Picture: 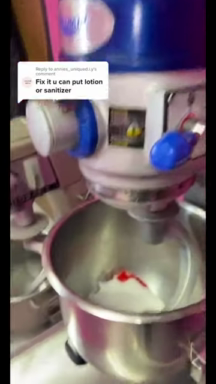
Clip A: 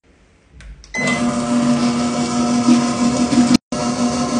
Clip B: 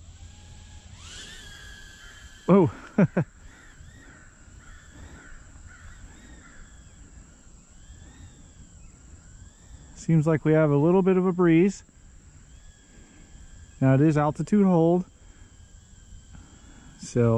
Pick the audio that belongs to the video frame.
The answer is A